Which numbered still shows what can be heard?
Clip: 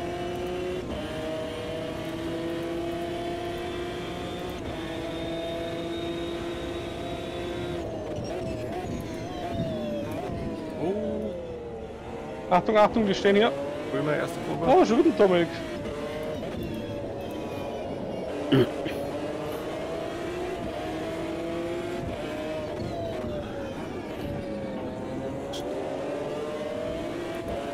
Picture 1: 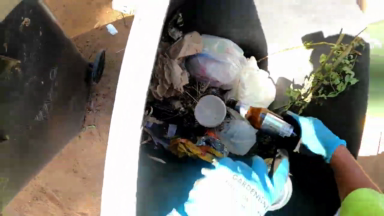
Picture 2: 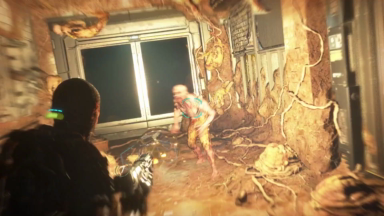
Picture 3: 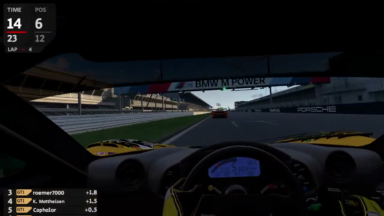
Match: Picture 3